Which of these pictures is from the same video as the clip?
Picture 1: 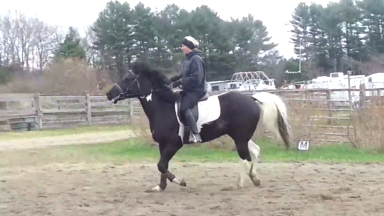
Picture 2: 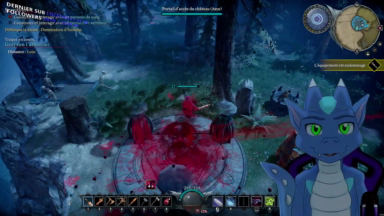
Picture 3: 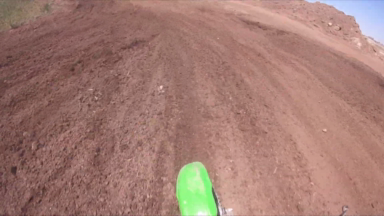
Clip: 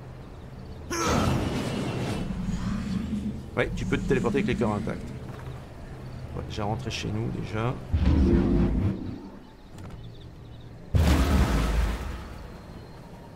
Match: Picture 2